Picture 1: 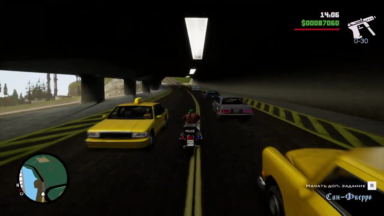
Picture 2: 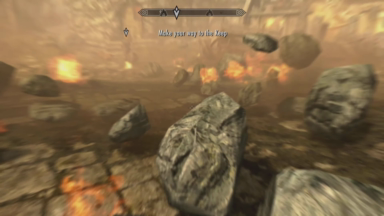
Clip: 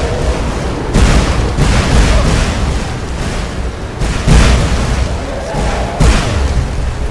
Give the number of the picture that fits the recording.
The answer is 2